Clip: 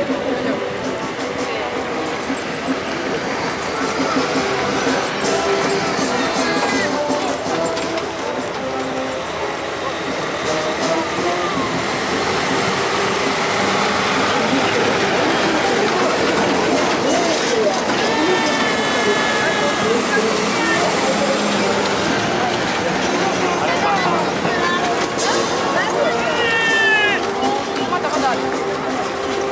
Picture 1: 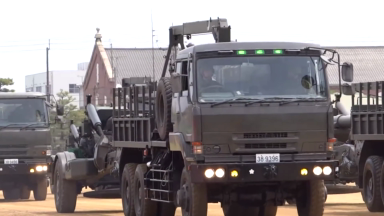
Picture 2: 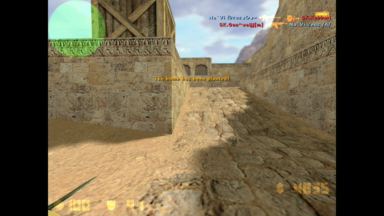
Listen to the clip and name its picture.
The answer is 1